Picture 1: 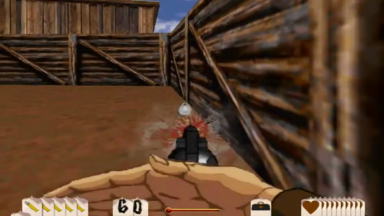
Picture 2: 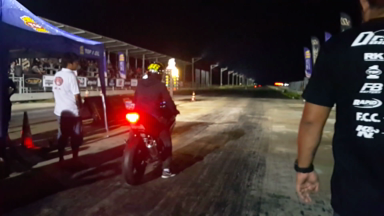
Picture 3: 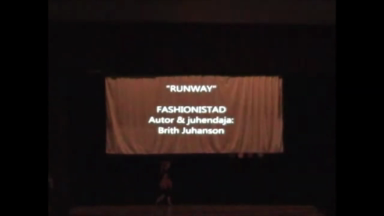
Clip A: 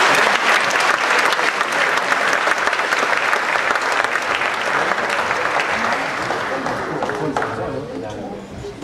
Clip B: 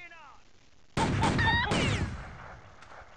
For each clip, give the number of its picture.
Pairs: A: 3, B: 1